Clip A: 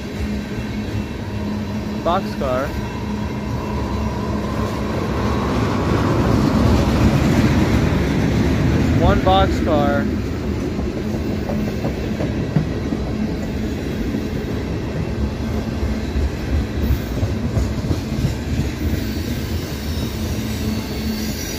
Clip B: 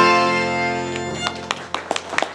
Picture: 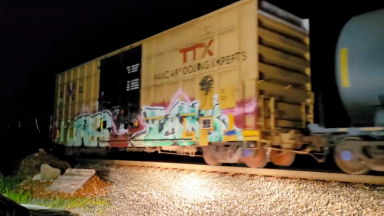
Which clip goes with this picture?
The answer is A